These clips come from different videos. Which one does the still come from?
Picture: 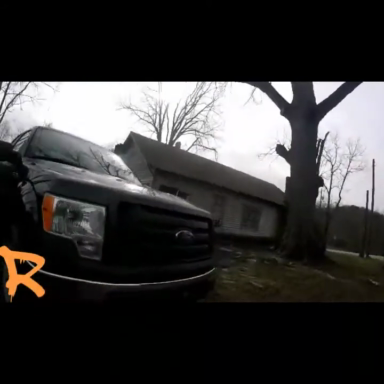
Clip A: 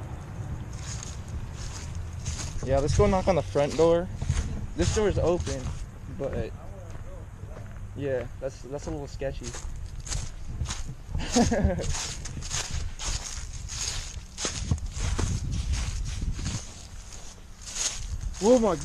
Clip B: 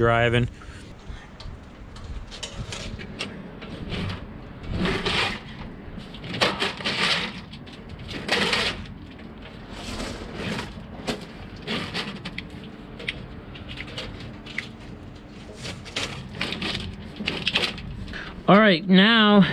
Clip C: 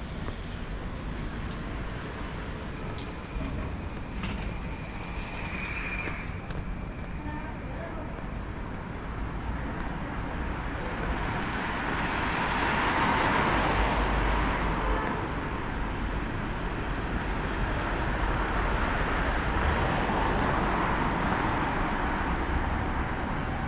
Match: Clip A